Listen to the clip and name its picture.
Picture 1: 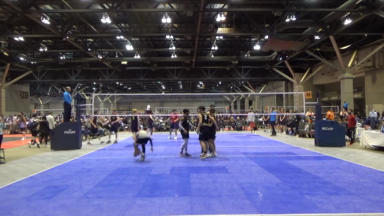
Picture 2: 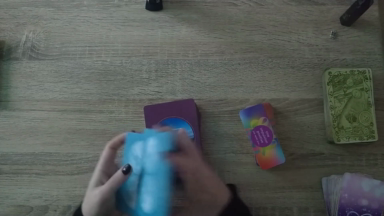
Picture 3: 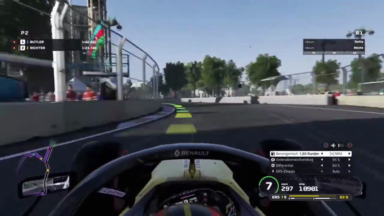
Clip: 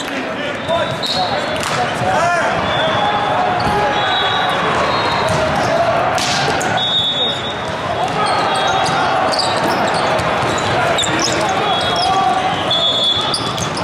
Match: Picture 1